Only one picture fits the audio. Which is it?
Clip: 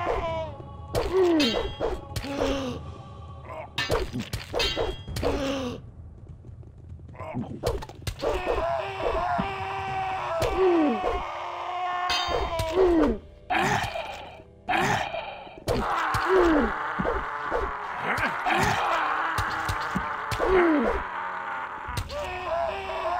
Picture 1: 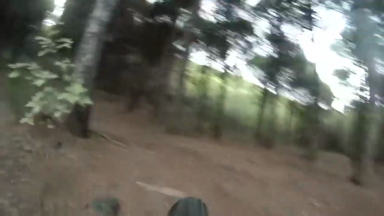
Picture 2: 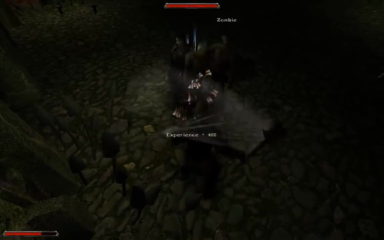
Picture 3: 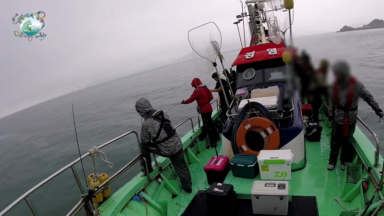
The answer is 2